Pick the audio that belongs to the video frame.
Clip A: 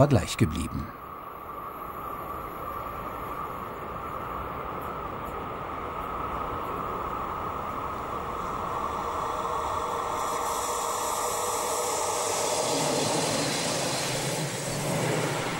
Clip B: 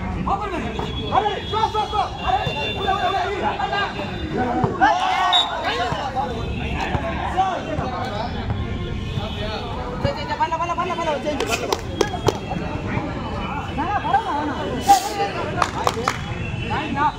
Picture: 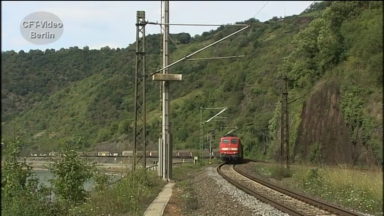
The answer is A